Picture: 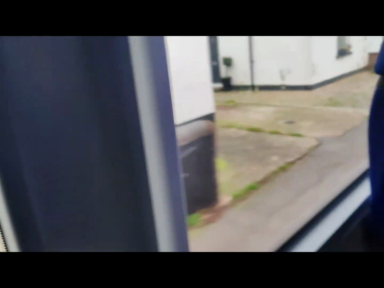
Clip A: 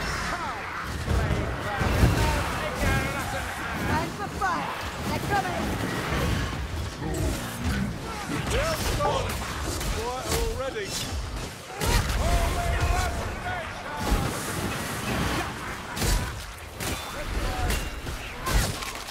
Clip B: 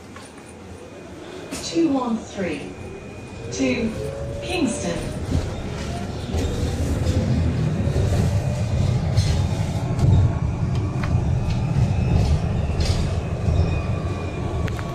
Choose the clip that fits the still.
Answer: B